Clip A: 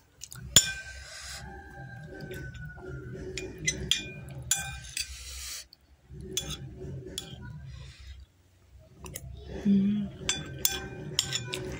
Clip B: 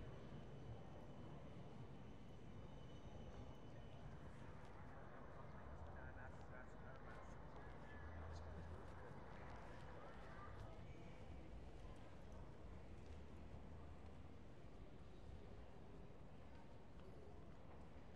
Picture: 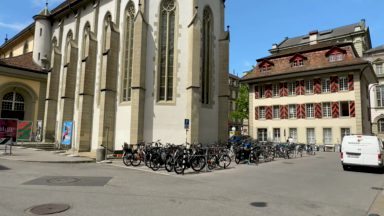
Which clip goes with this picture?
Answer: B